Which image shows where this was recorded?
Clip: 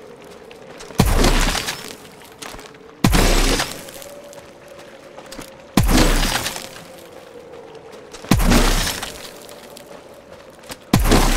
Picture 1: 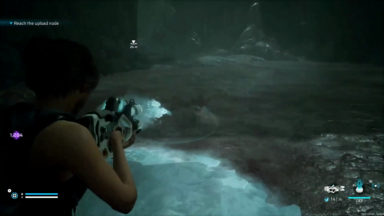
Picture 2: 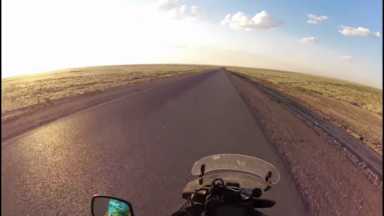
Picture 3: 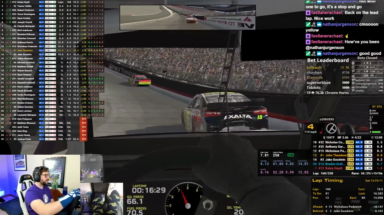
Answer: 1